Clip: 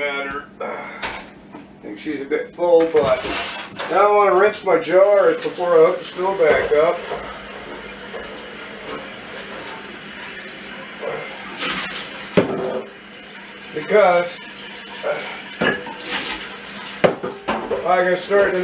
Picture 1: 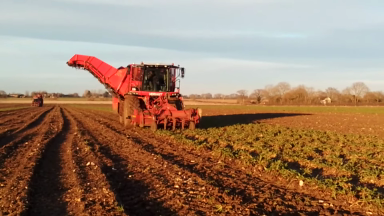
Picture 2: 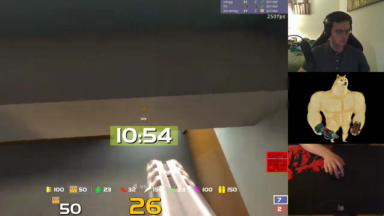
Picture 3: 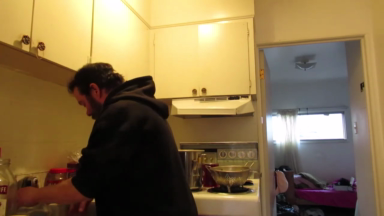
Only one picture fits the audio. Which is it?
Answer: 3